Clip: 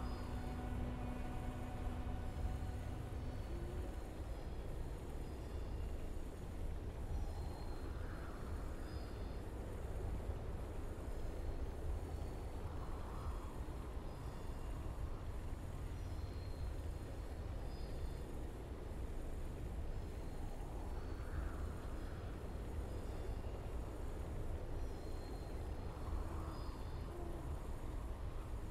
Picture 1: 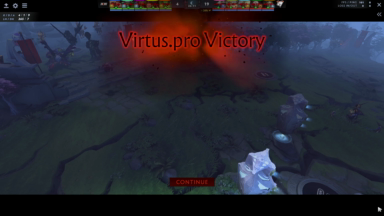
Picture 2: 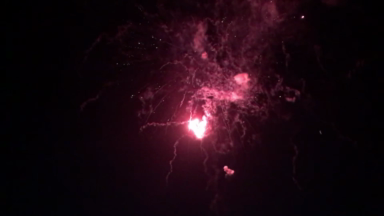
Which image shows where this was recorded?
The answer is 1